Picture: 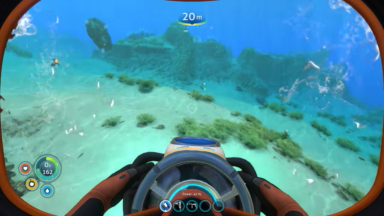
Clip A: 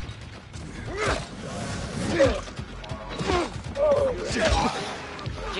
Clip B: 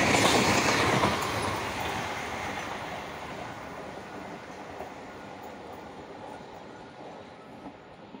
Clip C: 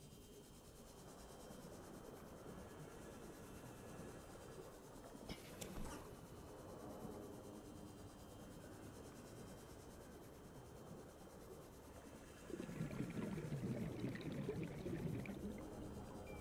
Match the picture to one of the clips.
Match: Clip C